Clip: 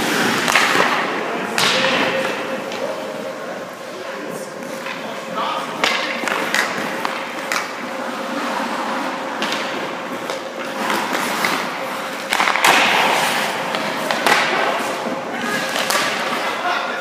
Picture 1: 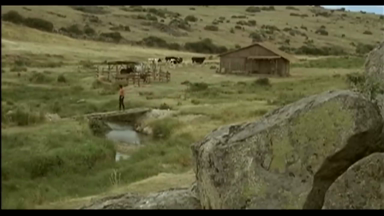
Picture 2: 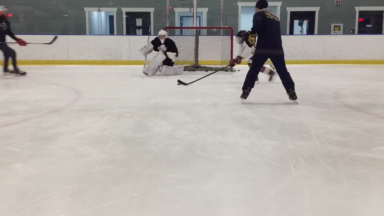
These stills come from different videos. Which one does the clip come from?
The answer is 2